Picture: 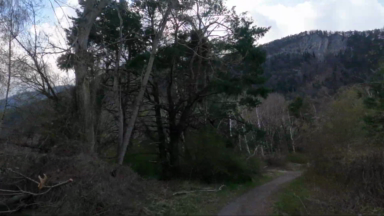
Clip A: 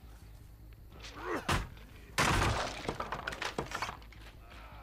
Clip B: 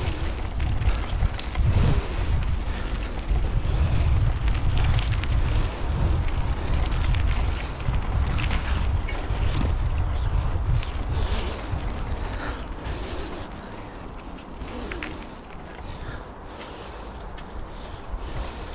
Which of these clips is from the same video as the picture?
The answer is B